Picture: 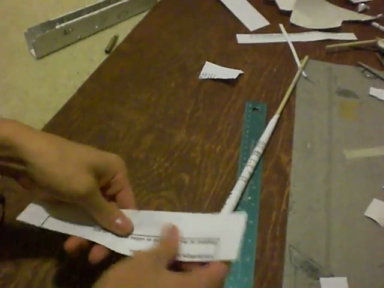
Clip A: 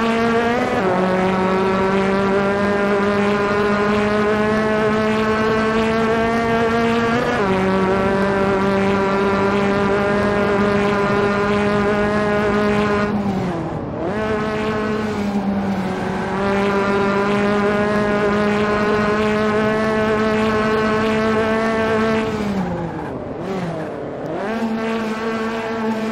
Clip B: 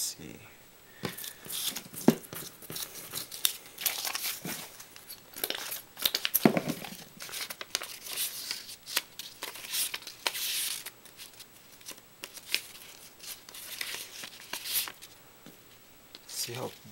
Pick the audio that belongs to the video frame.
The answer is B